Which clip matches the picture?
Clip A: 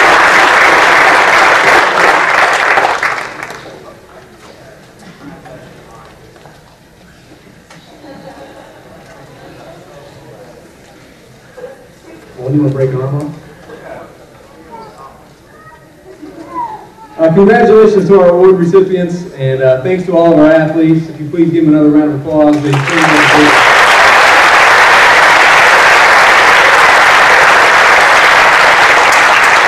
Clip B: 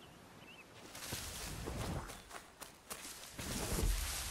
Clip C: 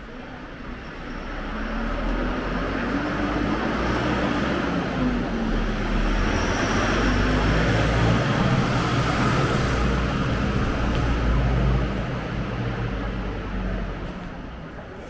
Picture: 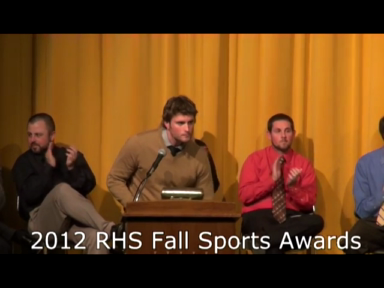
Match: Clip A